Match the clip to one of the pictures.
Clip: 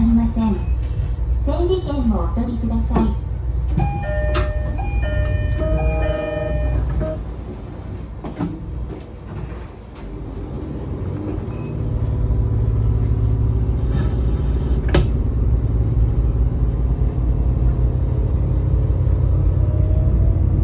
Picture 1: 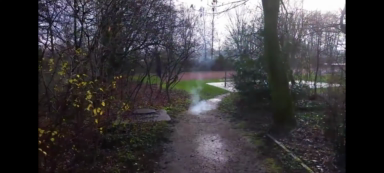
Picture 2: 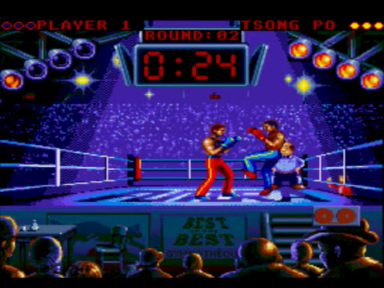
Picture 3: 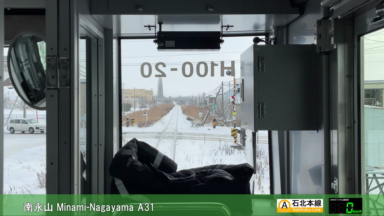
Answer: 3